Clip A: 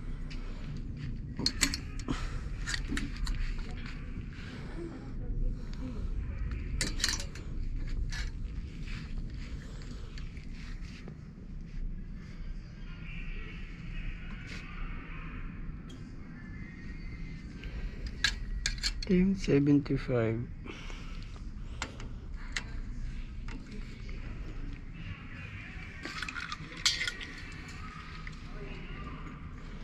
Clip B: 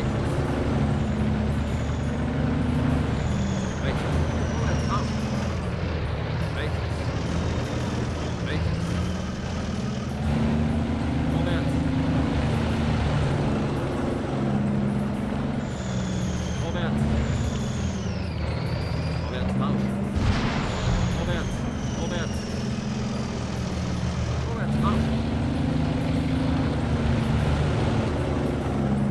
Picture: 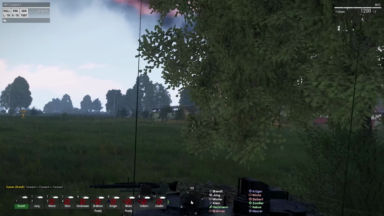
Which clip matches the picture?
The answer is B